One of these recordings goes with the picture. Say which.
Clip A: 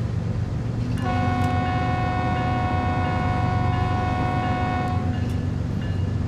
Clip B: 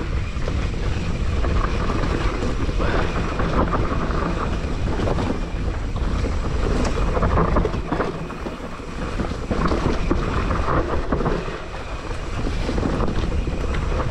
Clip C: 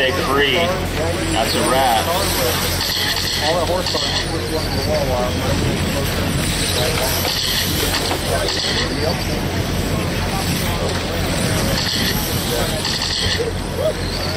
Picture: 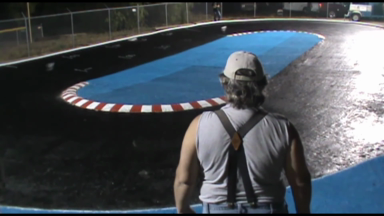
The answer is C